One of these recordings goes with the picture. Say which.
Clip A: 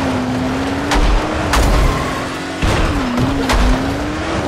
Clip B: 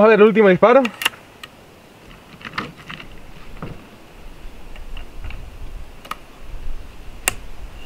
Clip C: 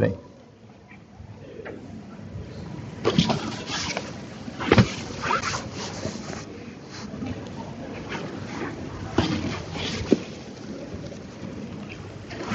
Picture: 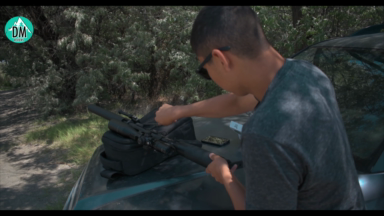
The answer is B